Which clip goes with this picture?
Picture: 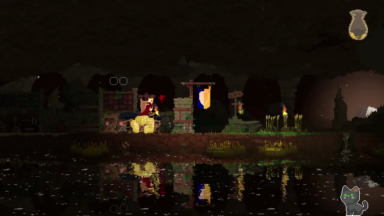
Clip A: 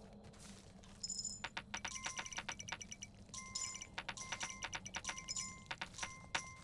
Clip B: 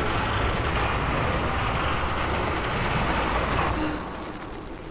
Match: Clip A